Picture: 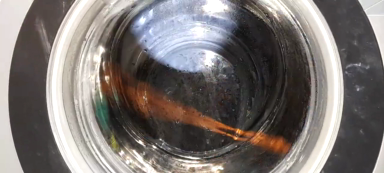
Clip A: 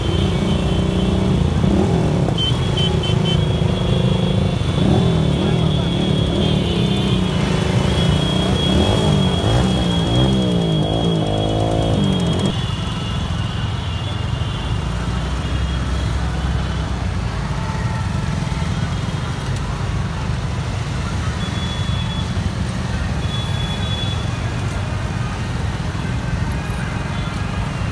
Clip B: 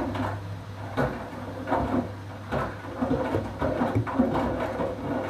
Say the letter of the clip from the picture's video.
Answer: B